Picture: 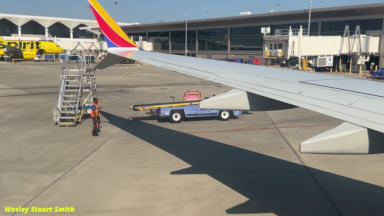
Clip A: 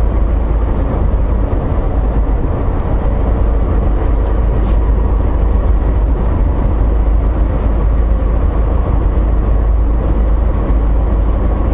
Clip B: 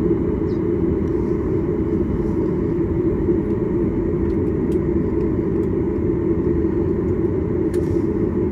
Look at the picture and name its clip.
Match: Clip B